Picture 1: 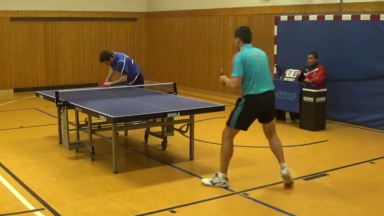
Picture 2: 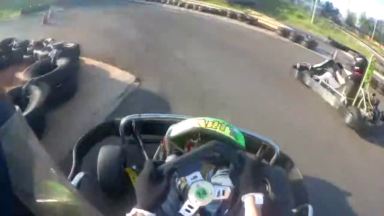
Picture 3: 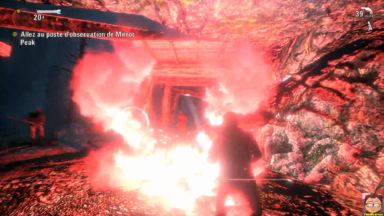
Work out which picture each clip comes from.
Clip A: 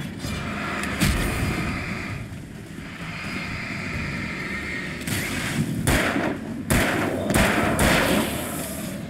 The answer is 3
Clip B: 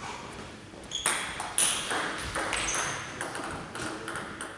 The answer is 1